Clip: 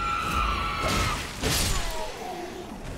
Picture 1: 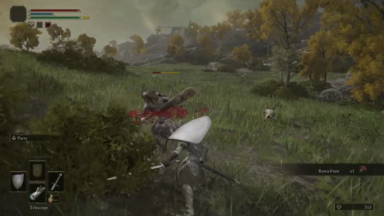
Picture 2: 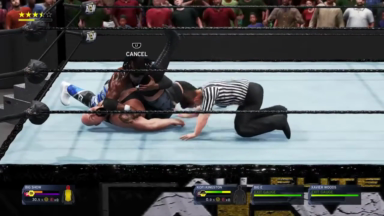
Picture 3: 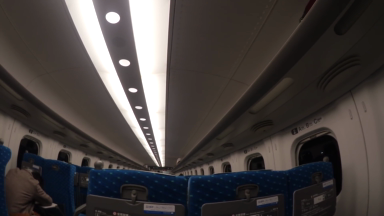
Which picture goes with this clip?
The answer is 1